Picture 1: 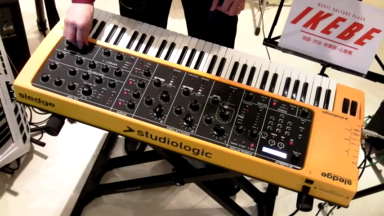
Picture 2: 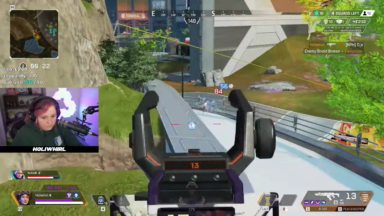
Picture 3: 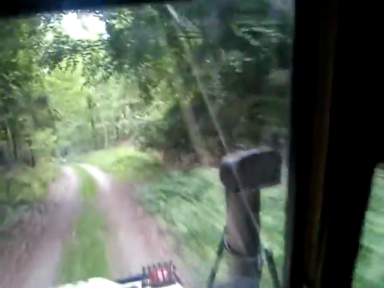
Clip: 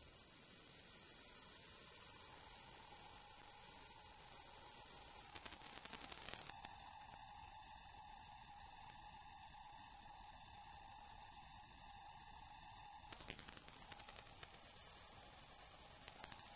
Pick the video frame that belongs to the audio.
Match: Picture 1